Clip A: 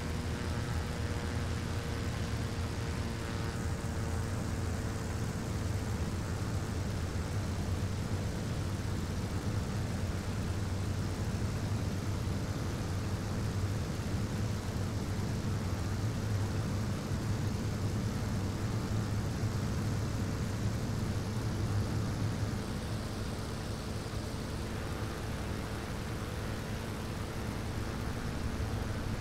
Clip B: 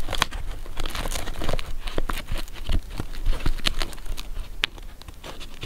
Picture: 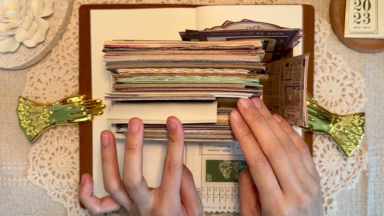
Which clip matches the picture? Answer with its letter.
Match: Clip B